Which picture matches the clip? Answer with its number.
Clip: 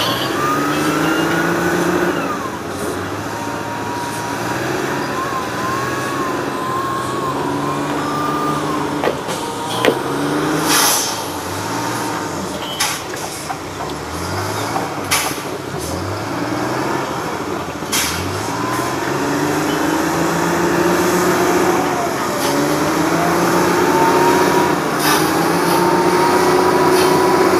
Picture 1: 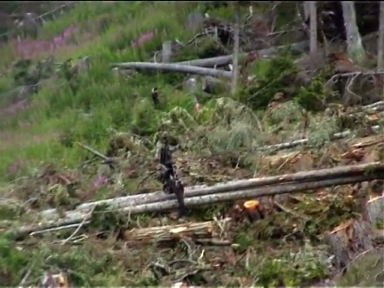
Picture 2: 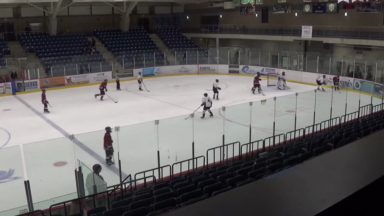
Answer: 1